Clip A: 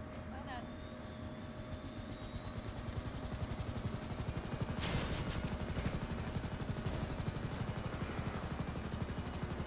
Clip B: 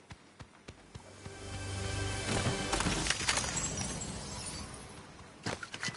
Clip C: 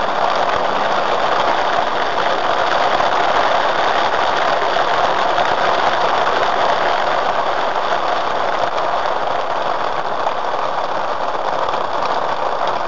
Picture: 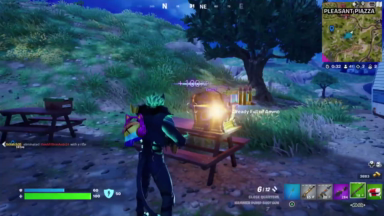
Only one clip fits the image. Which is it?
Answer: B